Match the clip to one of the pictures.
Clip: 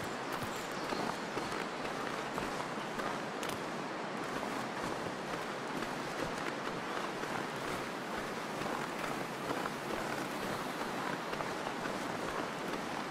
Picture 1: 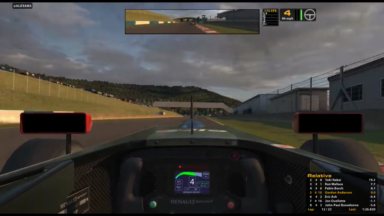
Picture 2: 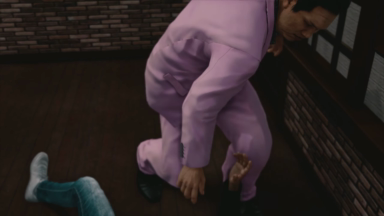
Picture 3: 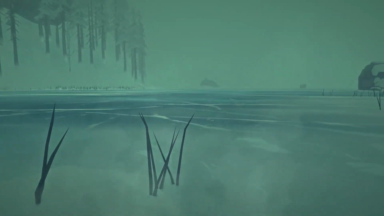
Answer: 3